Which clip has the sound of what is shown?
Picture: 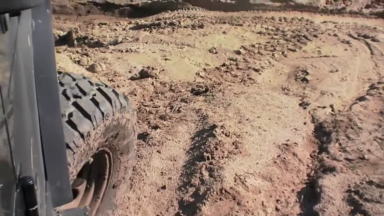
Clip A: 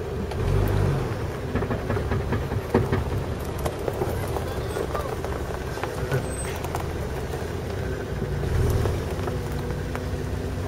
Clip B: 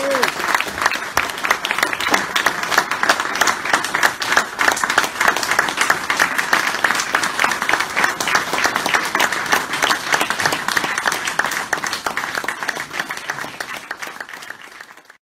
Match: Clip A